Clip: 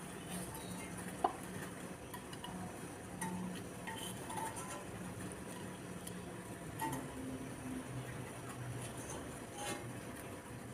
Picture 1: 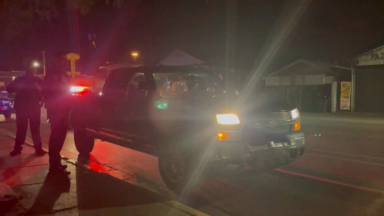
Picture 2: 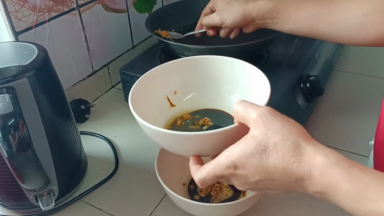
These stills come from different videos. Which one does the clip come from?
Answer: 2